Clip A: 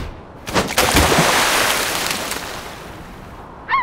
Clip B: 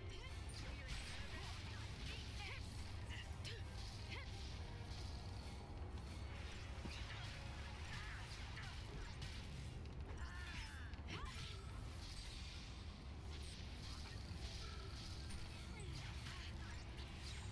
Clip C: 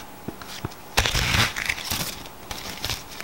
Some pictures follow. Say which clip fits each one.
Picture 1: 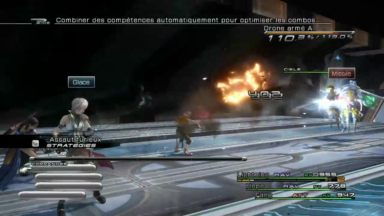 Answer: B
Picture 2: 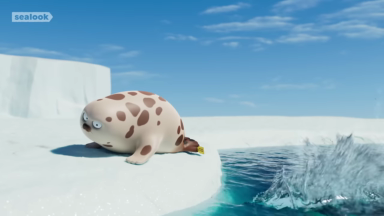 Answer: A